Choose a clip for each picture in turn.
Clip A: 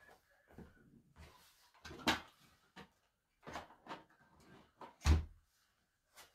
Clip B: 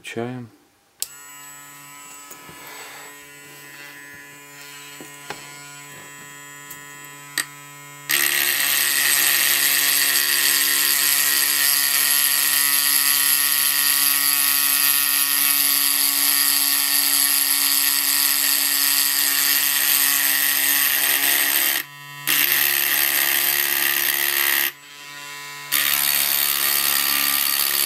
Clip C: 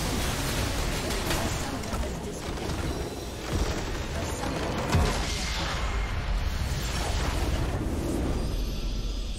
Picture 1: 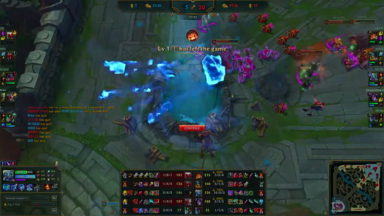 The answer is C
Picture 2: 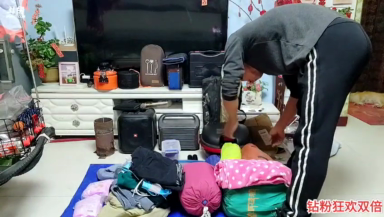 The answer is A